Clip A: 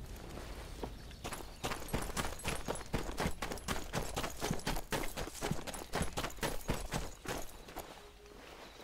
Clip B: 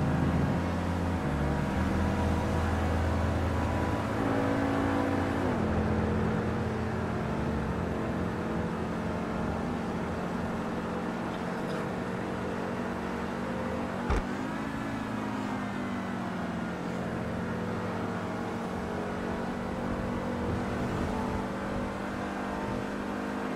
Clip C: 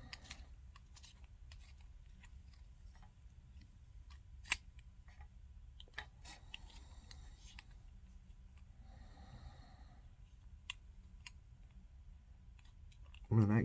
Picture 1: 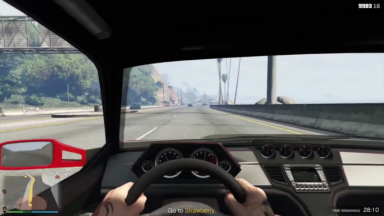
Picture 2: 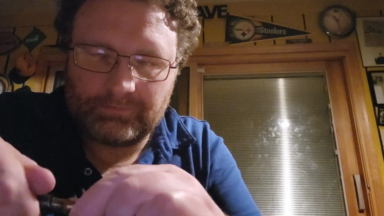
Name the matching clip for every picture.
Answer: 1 B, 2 C